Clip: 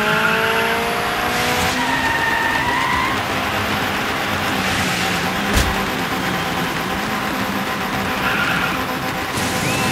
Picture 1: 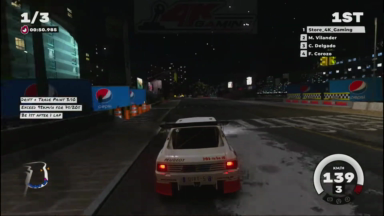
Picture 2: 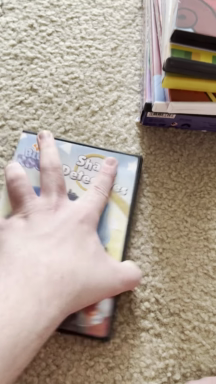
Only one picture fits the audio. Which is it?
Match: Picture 1